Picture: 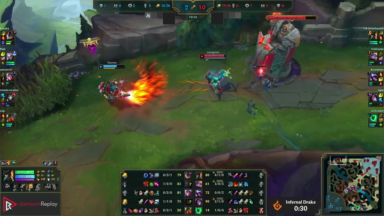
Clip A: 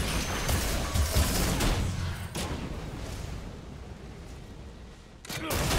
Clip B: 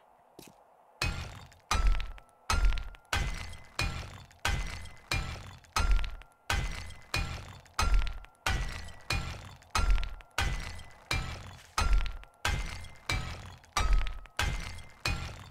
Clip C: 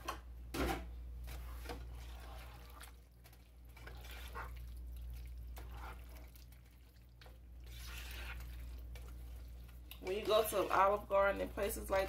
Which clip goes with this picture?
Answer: A